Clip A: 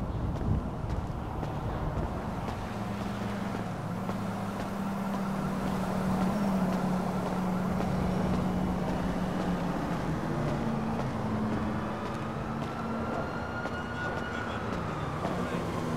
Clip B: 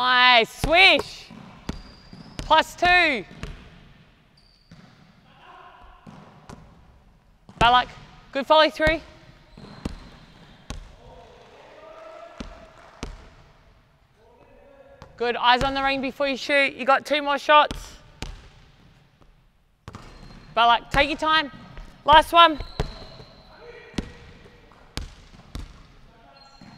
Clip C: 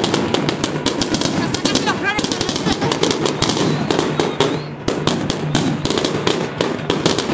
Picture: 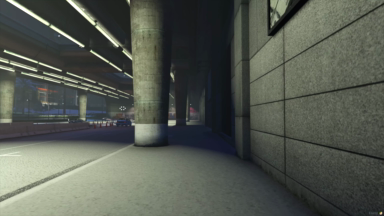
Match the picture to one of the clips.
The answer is A